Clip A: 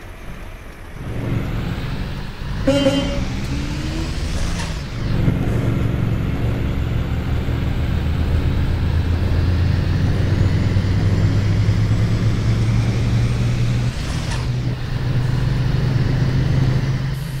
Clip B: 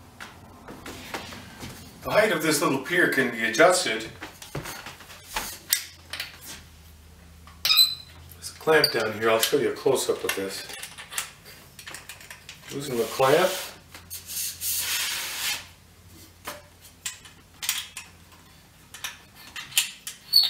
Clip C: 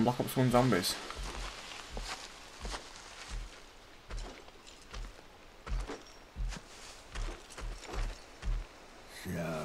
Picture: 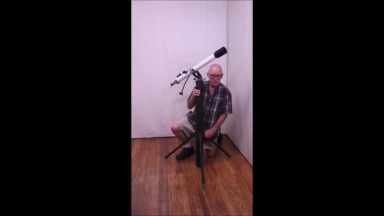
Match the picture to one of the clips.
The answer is B